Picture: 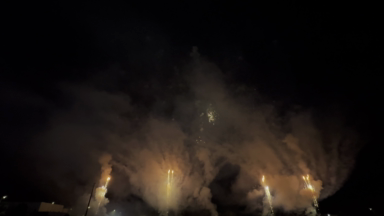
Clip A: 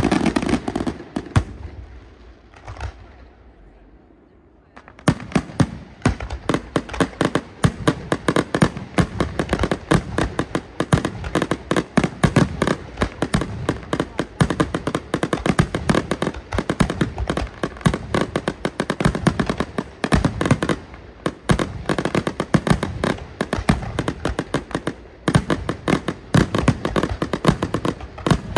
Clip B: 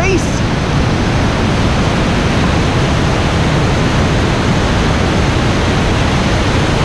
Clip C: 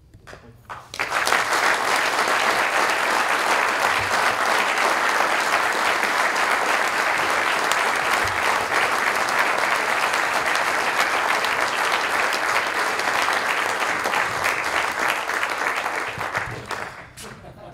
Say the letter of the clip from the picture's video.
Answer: A